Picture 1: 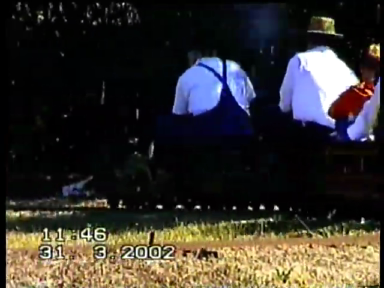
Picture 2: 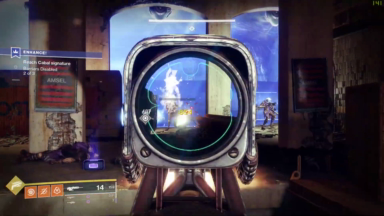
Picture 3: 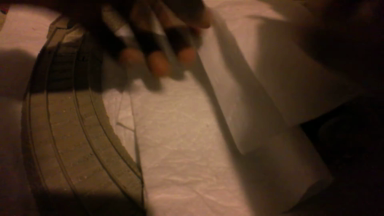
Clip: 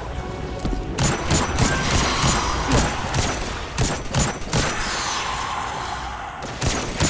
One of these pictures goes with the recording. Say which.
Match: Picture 2